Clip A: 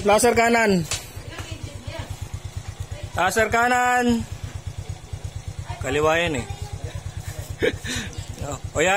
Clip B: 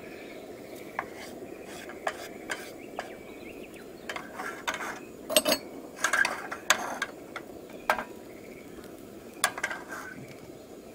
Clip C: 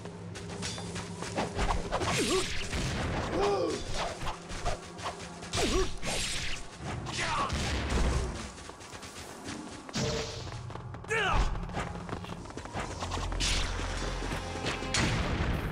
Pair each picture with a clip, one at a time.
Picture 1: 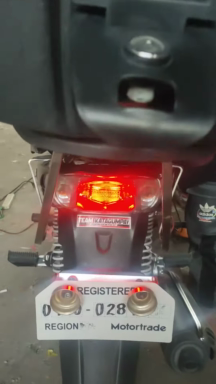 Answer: A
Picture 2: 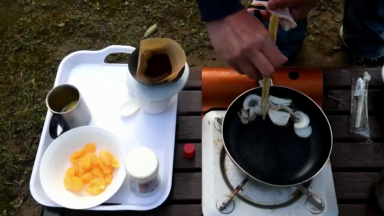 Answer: B